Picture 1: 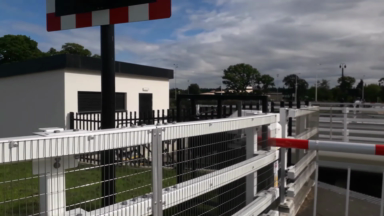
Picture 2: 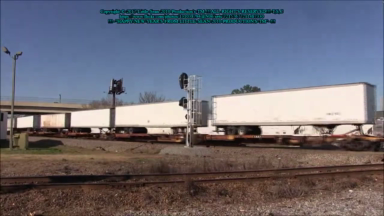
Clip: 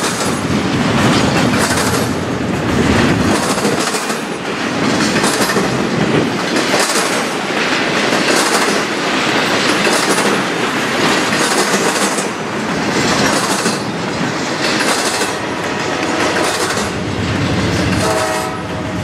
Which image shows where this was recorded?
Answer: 2